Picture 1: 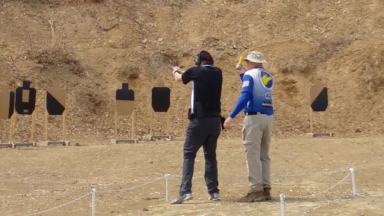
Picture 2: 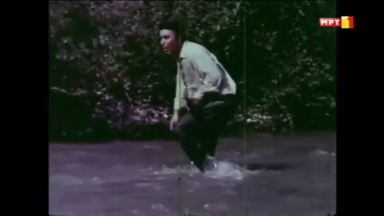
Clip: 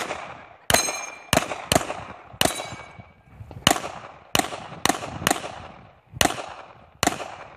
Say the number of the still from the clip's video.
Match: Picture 1